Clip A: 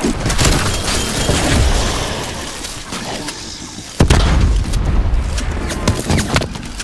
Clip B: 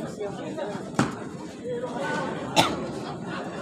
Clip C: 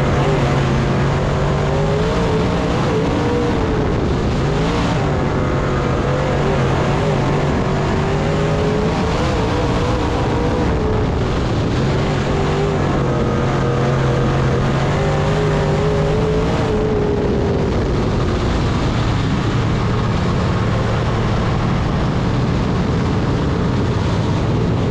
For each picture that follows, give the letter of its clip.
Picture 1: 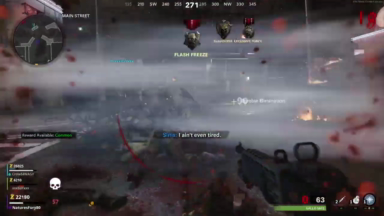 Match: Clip A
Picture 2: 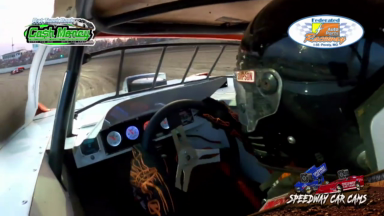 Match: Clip C